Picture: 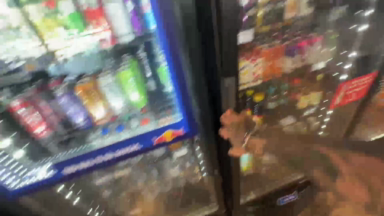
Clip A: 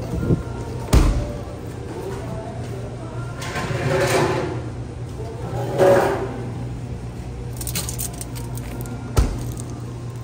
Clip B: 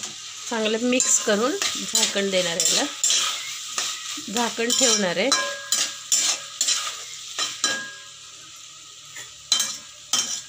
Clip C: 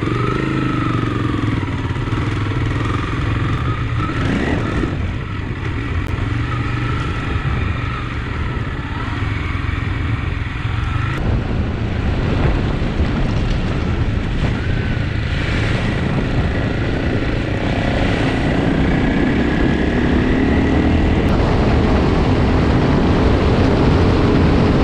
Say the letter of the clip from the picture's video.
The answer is A